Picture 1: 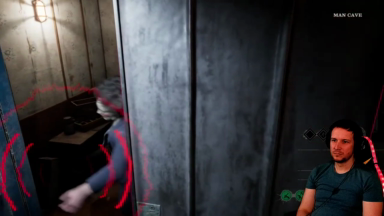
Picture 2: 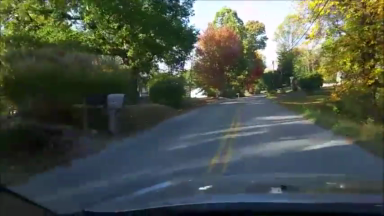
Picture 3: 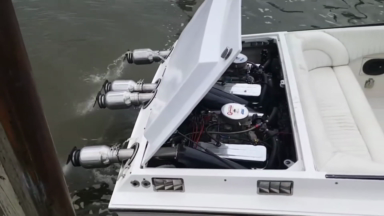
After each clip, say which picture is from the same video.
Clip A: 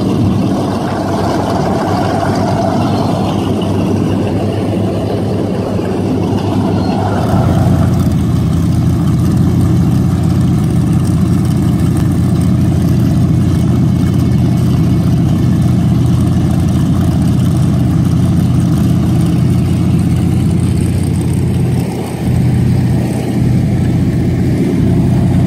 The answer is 3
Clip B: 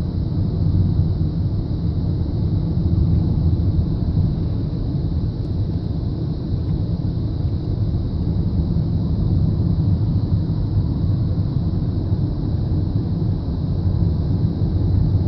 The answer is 2